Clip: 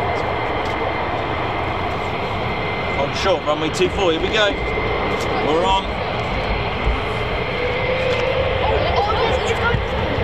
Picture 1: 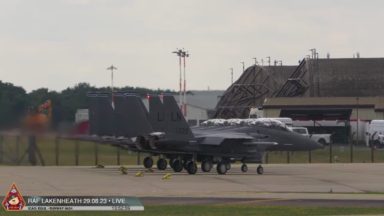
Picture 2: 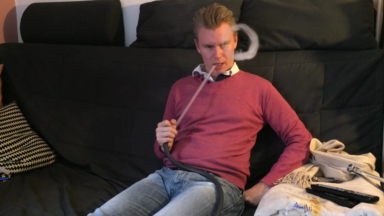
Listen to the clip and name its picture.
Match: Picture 1